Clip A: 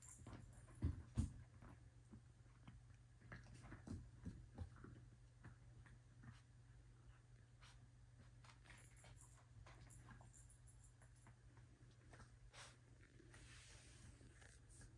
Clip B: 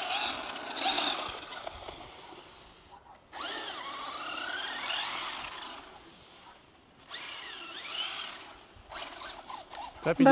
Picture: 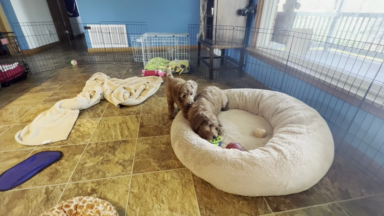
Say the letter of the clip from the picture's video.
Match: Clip A